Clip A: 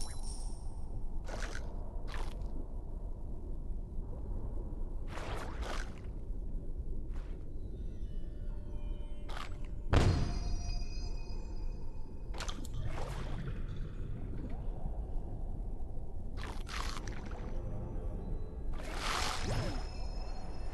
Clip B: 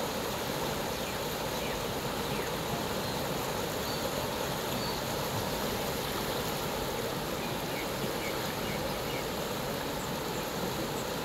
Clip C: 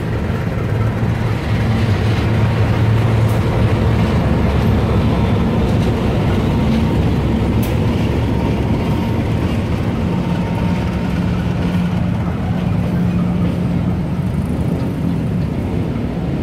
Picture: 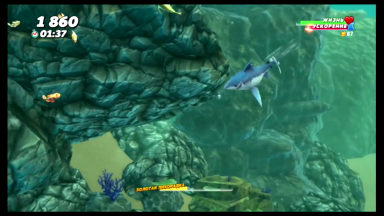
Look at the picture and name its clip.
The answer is A